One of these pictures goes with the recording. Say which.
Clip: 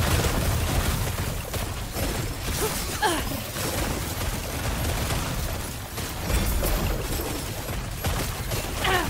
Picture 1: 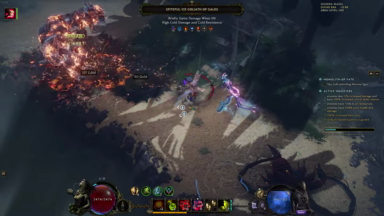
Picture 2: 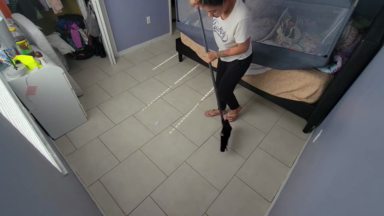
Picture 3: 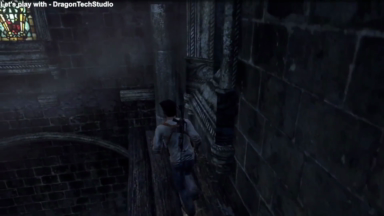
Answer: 1